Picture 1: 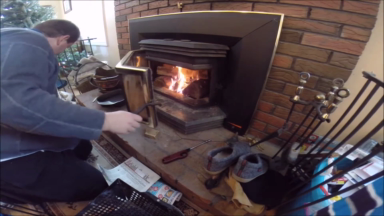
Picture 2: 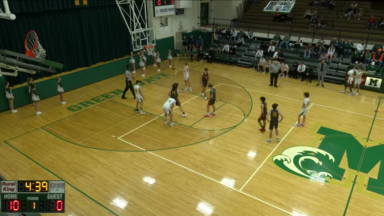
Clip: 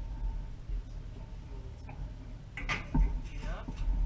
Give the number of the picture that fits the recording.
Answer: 1